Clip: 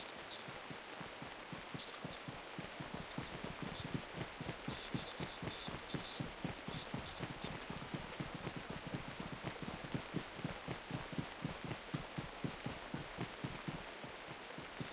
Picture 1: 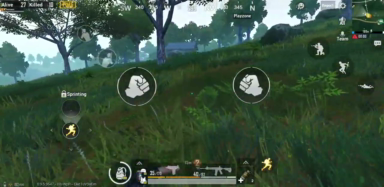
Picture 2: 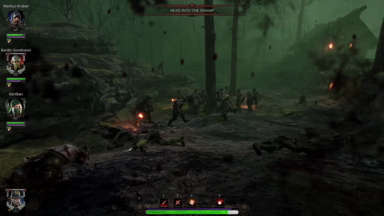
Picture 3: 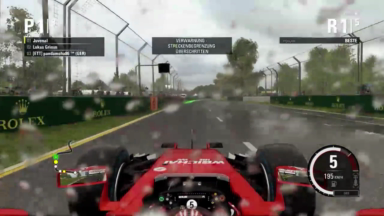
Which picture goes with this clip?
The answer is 1